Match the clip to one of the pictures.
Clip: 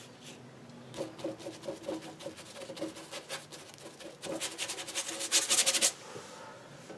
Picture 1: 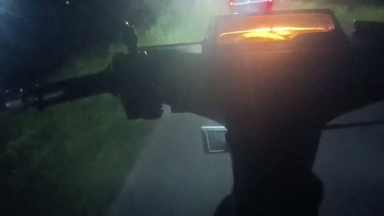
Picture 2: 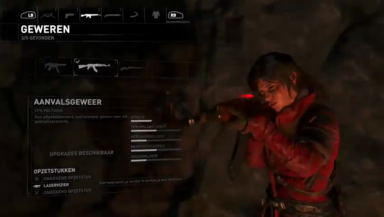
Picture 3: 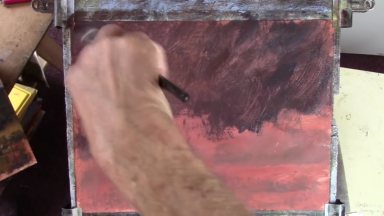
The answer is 3